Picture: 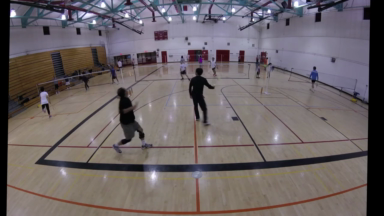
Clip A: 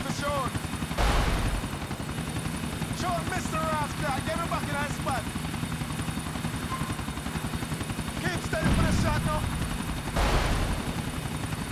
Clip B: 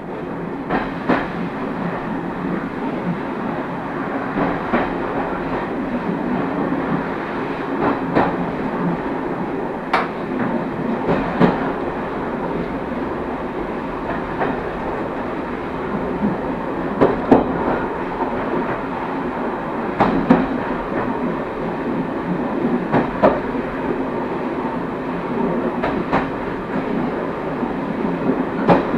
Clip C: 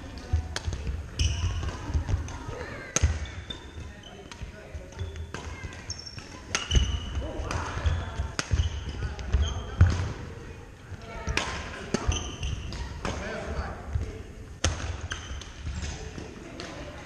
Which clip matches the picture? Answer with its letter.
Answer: C